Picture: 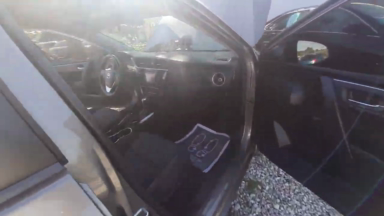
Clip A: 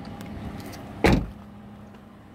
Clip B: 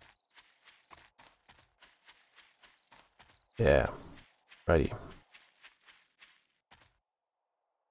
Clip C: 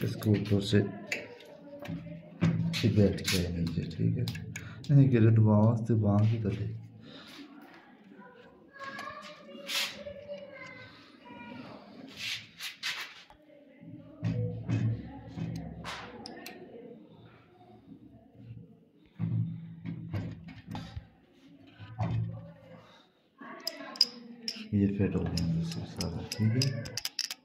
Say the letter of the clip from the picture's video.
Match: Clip A